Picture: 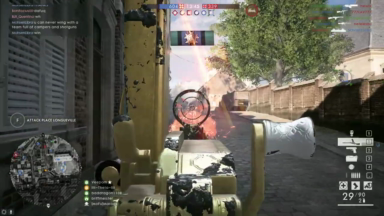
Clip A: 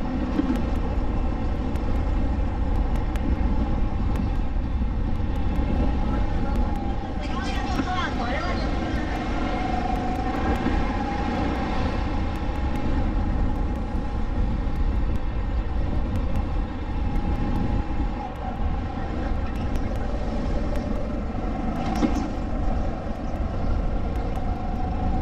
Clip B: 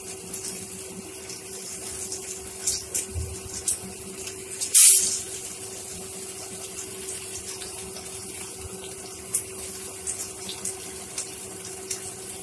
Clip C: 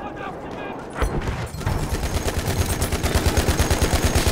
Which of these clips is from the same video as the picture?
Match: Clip C